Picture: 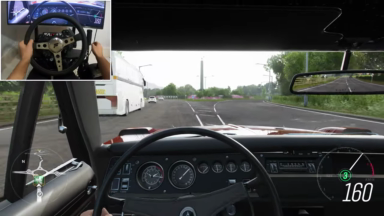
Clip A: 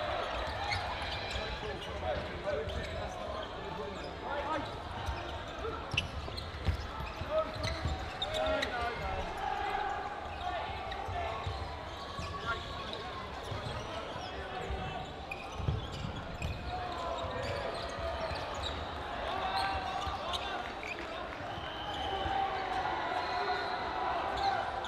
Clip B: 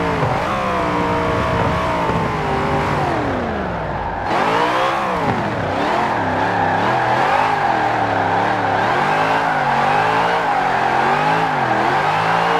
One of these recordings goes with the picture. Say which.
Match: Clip B